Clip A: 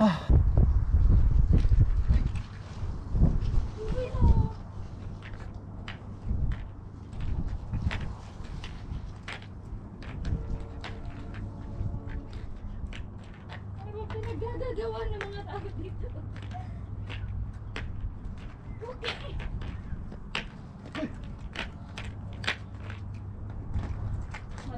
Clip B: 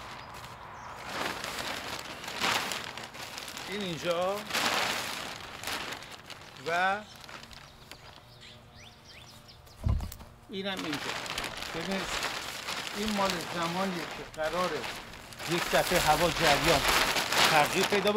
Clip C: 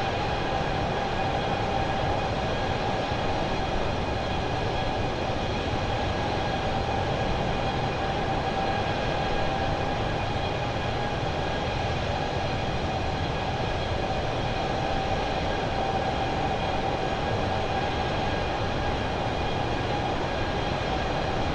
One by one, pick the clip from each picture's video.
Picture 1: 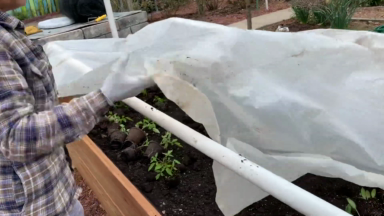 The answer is B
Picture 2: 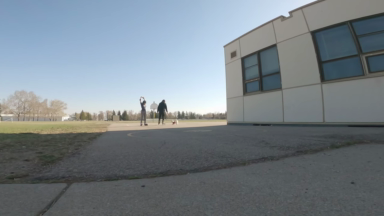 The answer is A